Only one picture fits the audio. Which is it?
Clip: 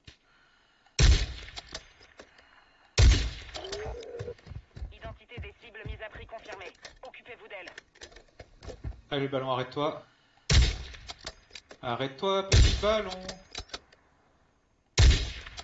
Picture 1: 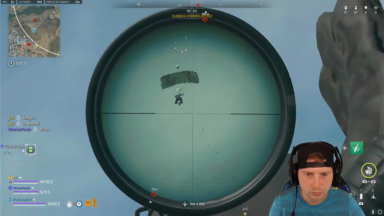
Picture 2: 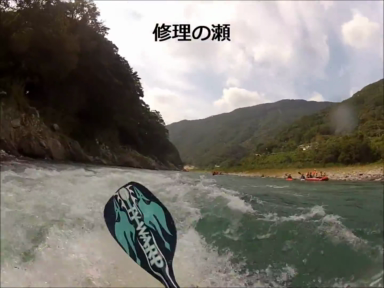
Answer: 1